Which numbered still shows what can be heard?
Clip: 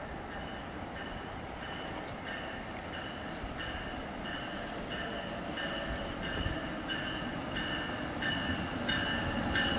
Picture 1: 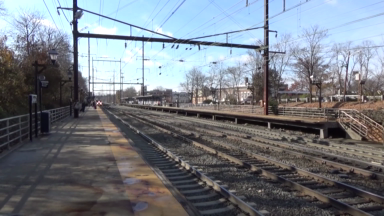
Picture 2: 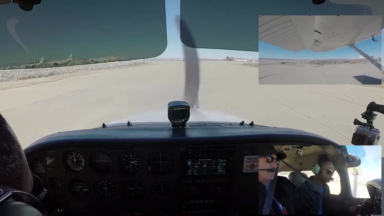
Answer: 1